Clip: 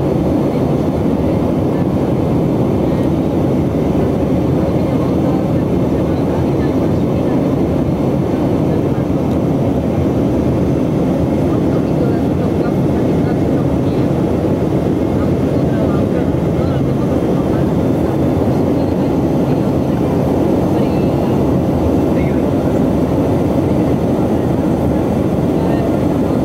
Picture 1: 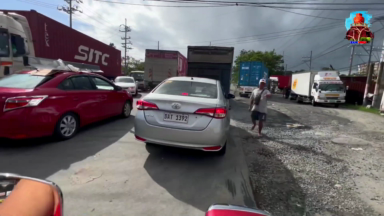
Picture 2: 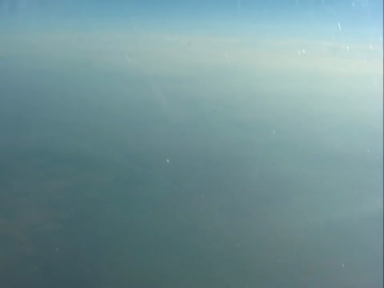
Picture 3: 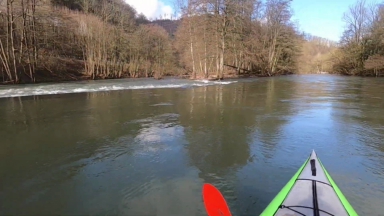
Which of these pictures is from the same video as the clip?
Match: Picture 2